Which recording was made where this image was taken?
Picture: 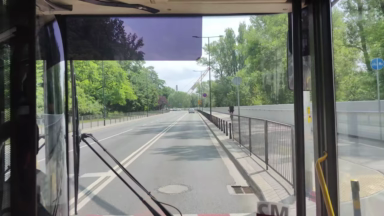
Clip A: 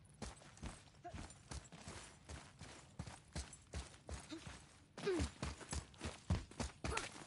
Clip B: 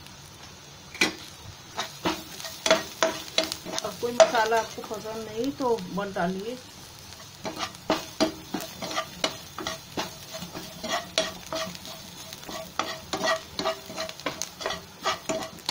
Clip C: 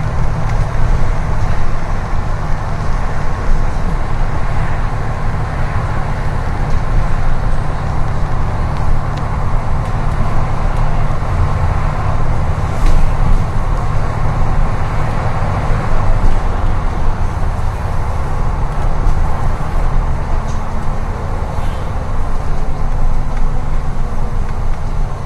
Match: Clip C